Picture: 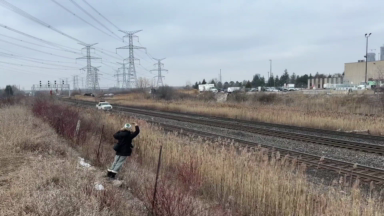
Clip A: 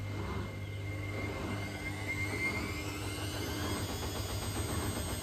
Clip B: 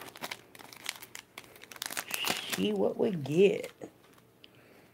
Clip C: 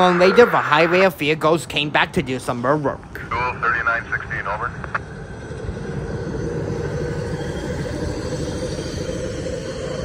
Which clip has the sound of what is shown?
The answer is C